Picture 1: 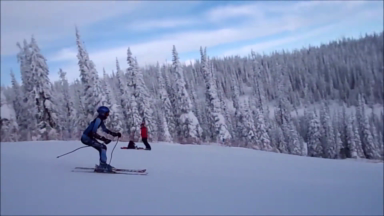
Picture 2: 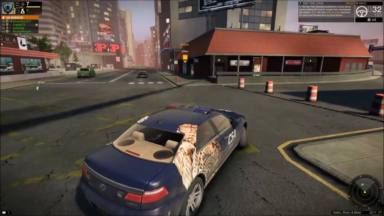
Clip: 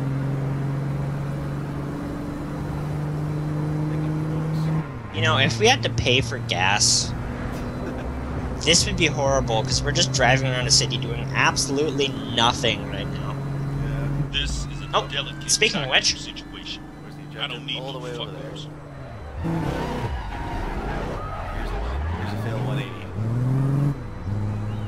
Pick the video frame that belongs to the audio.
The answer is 2